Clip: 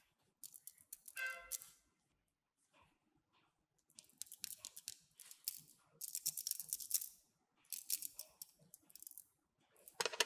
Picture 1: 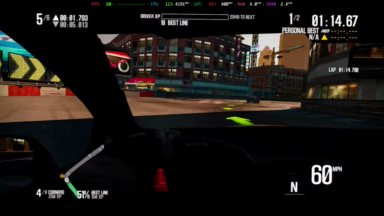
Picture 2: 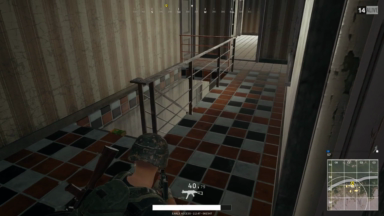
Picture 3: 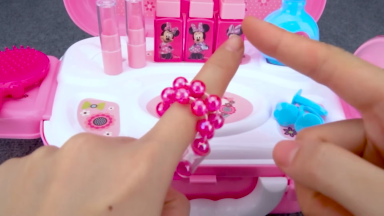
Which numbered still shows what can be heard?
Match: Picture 3